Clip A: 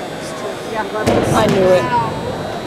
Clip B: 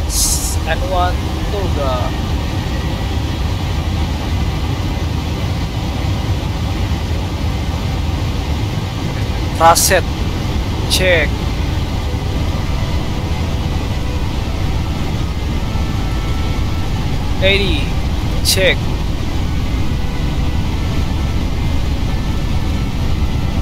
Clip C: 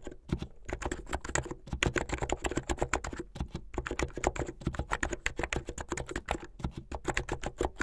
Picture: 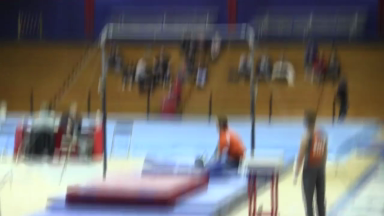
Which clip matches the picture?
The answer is A